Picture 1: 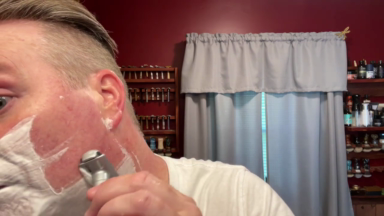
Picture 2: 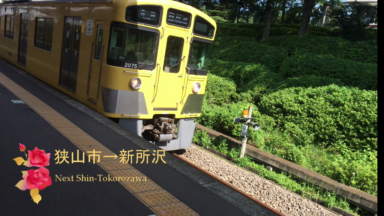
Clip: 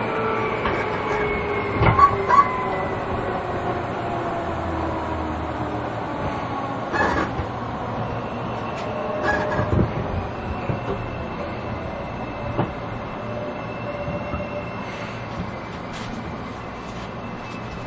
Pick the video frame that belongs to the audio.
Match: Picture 2